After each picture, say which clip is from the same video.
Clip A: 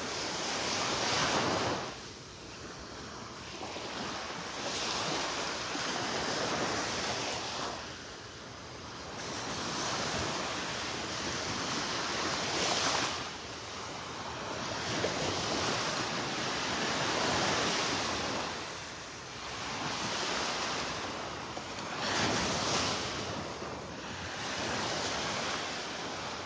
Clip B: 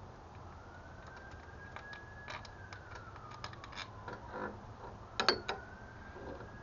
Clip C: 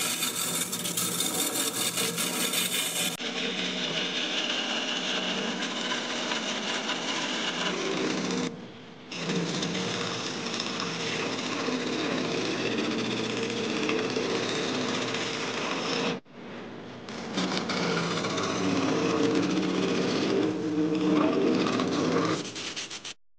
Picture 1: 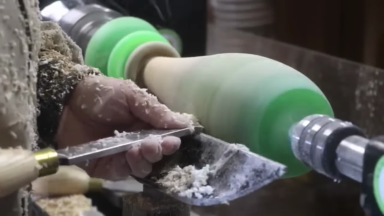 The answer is C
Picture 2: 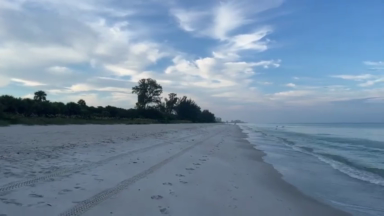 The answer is A